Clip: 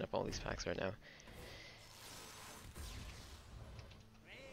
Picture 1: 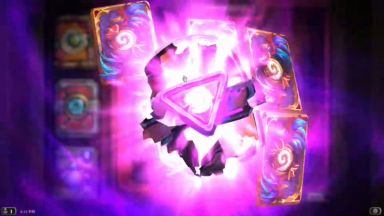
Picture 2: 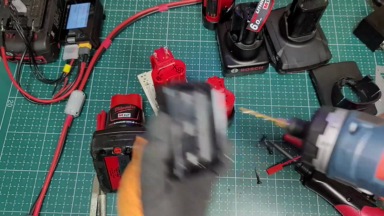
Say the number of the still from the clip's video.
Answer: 1